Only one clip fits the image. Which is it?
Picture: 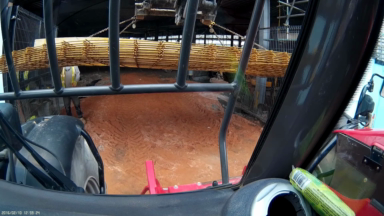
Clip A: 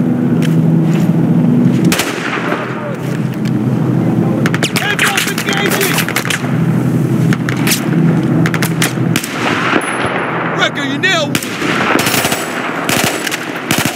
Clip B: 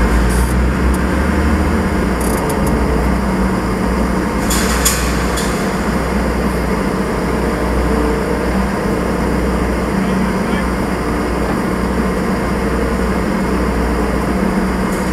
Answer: B